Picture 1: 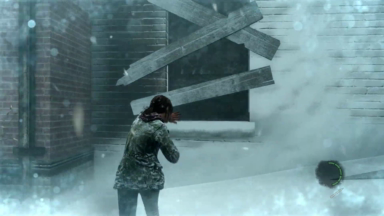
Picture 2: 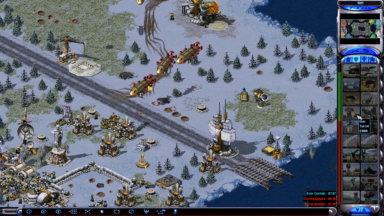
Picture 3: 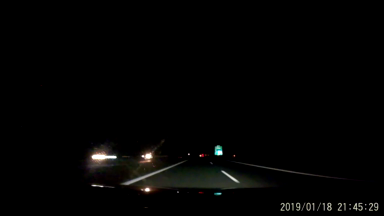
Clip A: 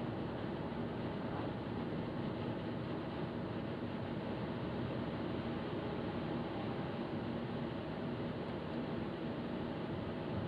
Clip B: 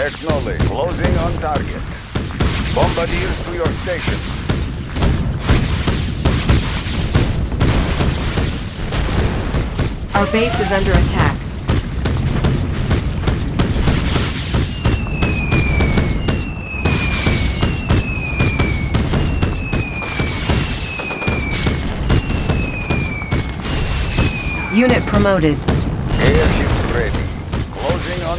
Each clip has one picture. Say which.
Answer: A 3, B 2